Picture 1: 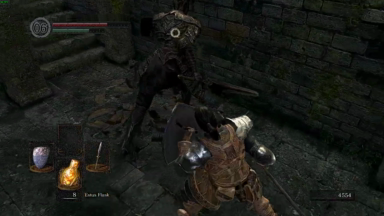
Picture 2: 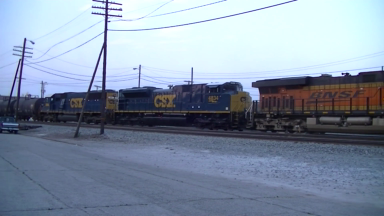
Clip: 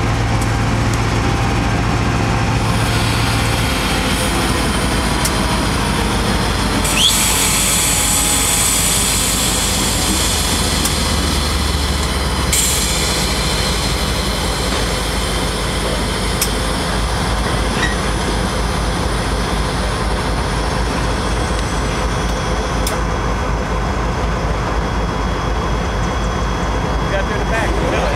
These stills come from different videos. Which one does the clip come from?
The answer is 2